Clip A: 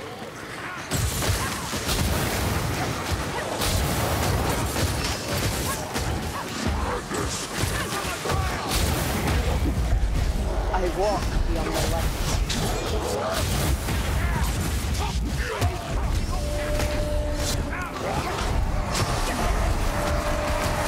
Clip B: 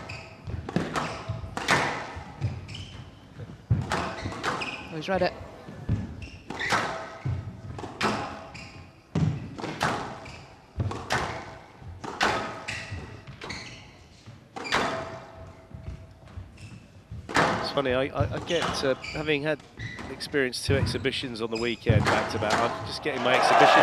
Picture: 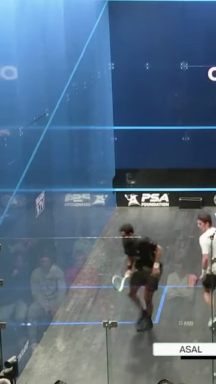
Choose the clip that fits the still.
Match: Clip B